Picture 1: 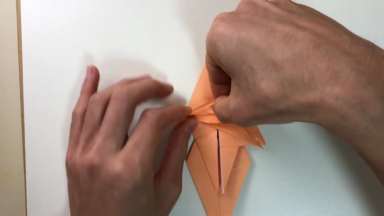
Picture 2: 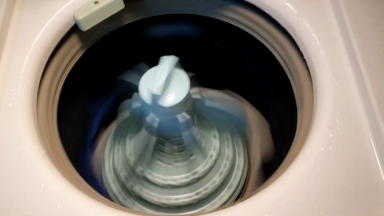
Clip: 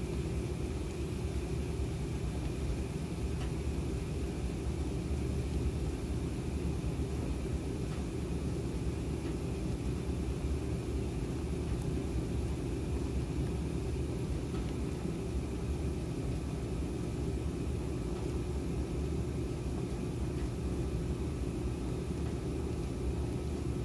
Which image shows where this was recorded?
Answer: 2